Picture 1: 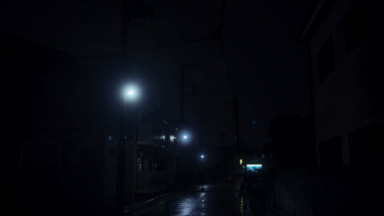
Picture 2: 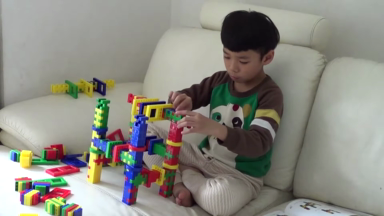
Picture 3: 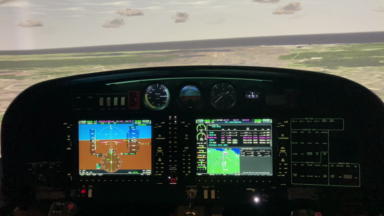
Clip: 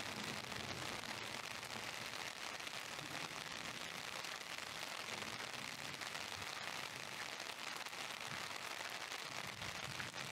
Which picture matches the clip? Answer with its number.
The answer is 1